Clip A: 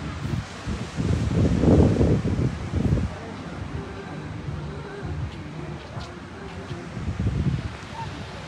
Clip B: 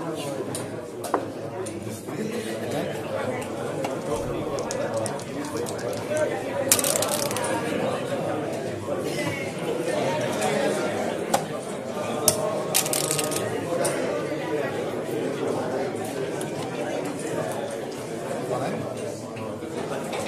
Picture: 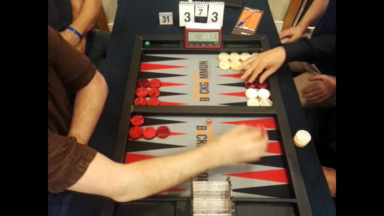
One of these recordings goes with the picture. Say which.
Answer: B